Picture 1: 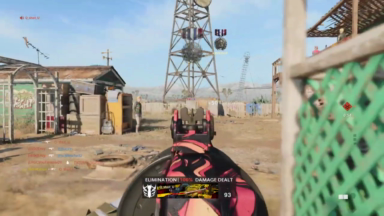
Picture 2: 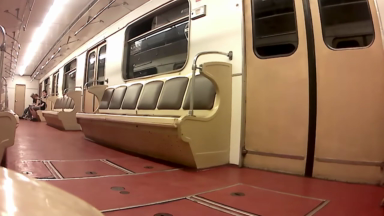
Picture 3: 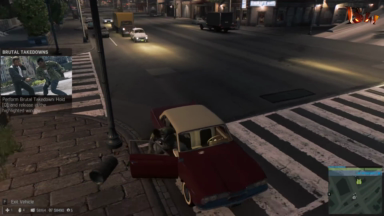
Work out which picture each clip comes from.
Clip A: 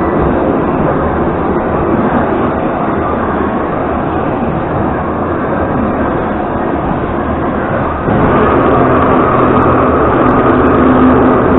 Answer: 2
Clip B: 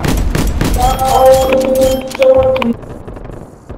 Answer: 1